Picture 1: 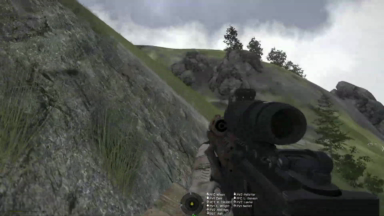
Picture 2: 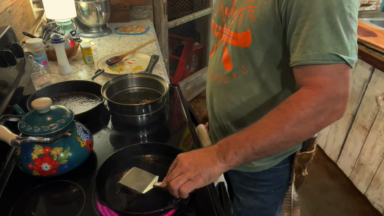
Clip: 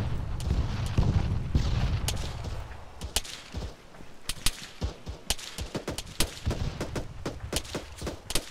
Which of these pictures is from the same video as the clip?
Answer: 1